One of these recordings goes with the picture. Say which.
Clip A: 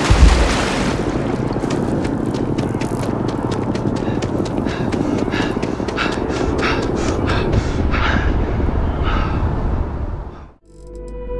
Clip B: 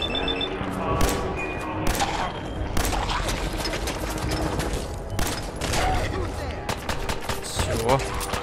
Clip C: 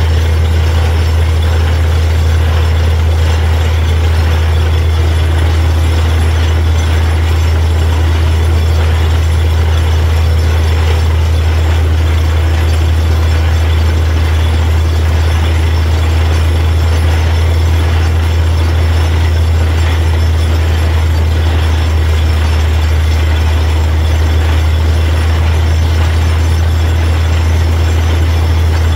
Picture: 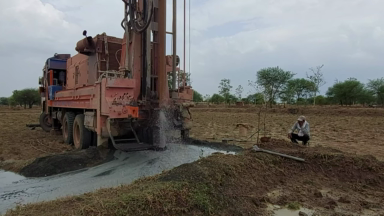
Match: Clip C